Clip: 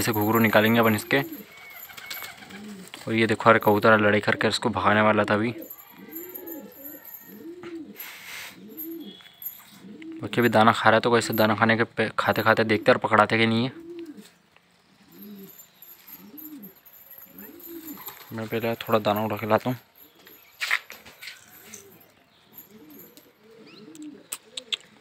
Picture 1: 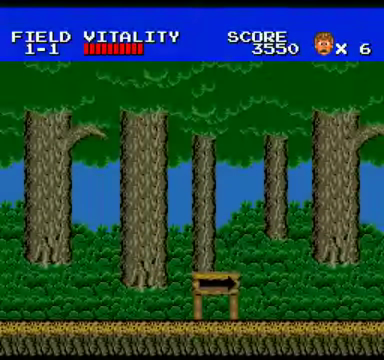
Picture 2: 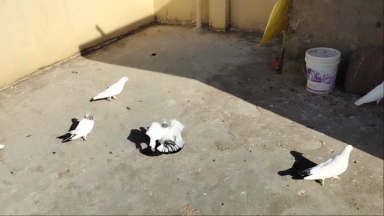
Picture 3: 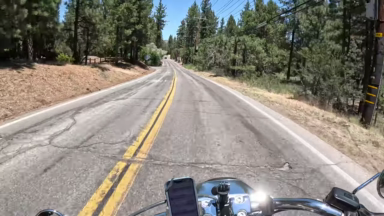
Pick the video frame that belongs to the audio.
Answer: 2